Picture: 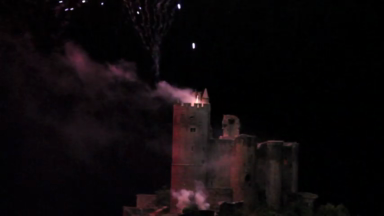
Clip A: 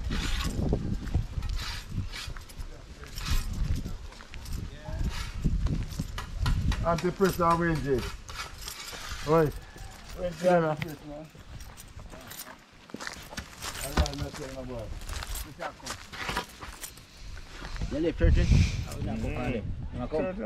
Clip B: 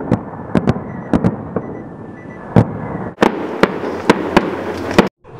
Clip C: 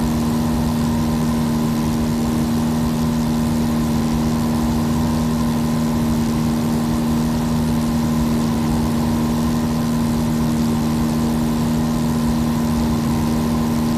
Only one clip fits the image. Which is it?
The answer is B